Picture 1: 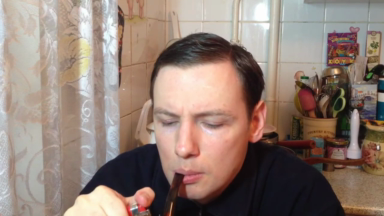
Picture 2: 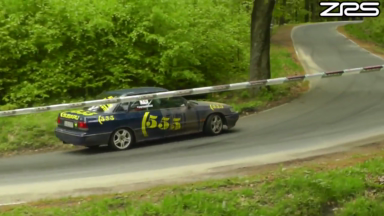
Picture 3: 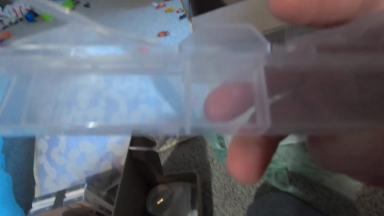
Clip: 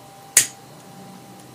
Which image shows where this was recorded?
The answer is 1